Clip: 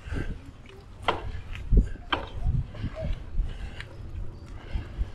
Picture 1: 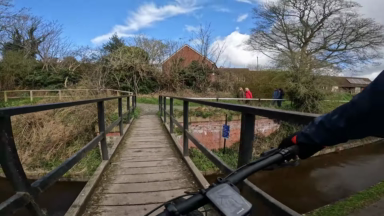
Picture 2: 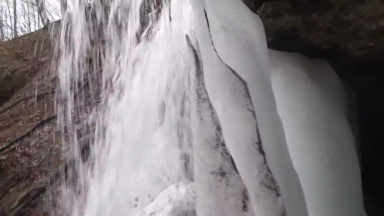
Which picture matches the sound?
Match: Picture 1